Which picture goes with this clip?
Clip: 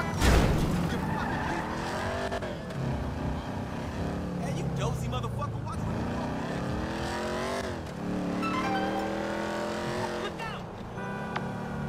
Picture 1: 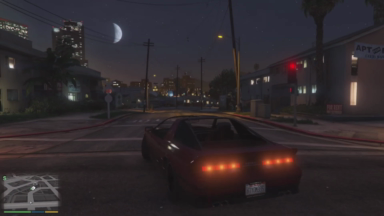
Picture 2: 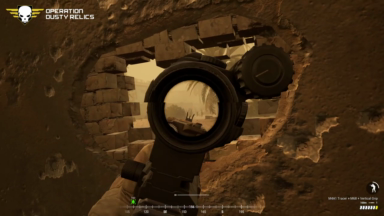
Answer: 1